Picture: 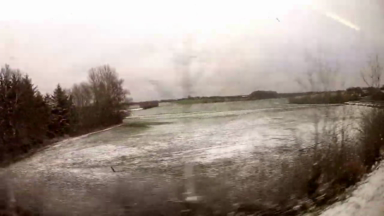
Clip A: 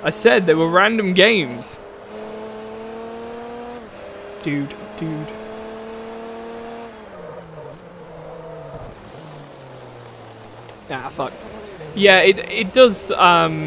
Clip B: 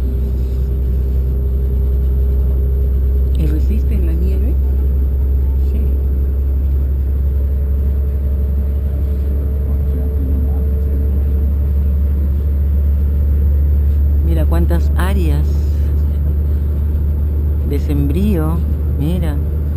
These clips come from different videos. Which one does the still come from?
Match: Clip B